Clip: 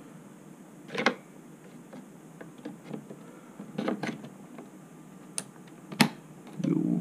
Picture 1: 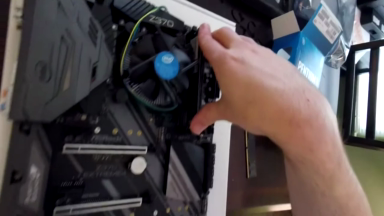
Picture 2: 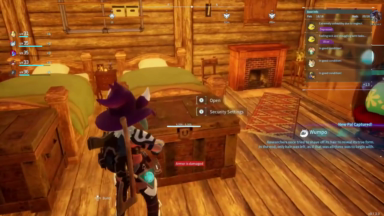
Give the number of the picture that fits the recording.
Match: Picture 1